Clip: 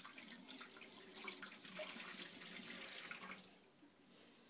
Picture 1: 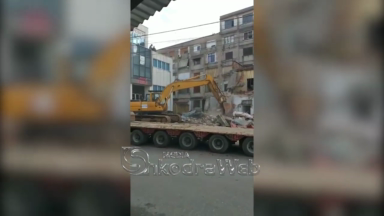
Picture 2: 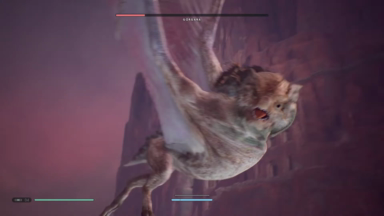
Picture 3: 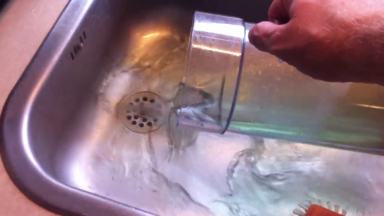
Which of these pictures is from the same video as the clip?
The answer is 3